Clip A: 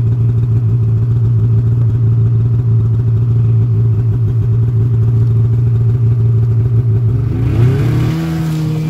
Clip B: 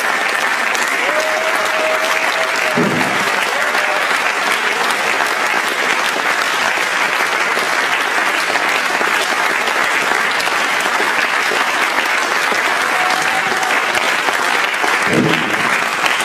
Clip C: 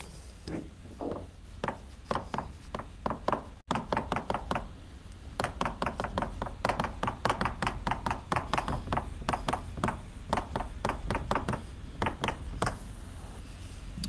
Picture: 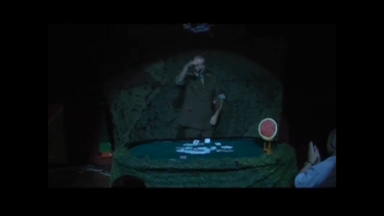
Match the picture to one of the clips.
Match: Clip B